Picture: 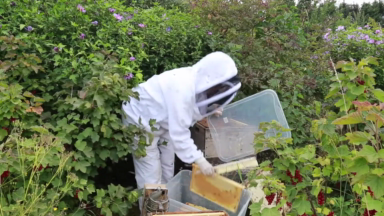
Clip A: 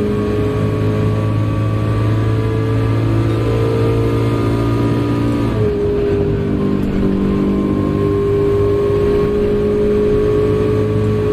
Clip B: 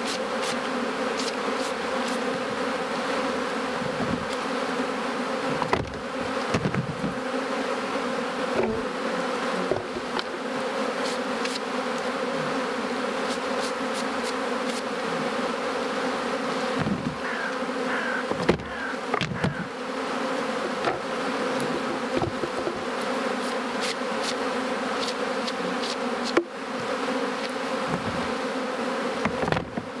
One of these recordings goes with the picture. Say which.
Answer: B